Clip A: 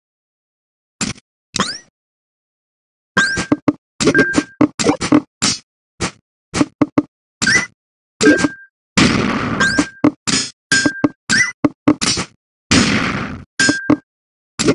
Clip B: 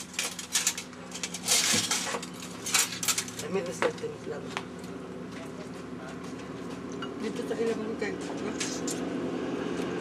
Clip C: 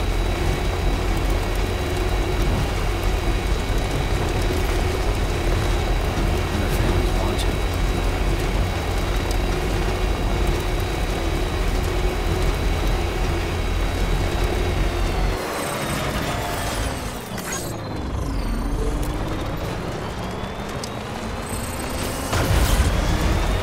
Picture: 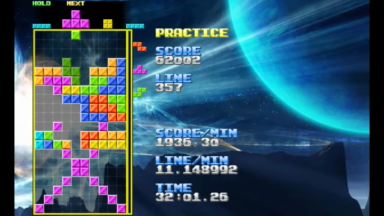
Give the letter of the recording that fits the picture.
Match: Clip A